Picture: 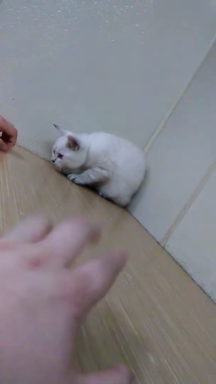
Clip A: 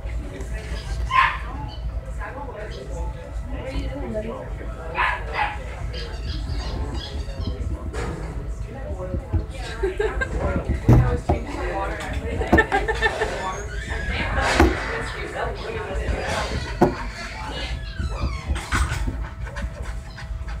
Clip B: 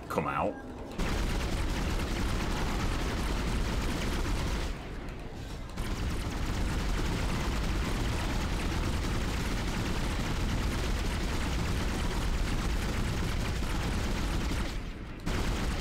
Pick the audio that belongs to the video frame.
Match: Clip A